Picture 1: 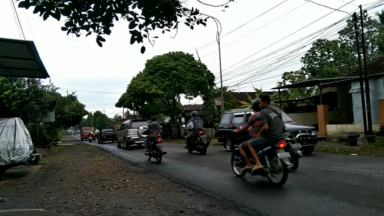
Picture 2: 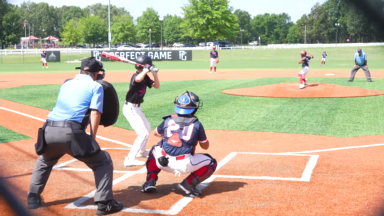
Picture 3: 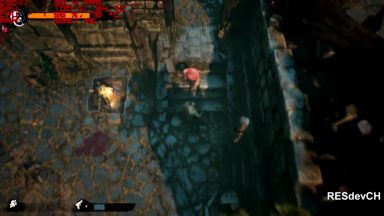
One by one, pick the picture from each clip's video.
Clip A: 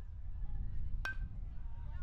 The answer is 2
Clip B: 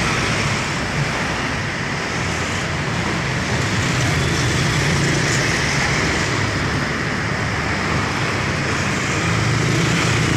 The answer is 1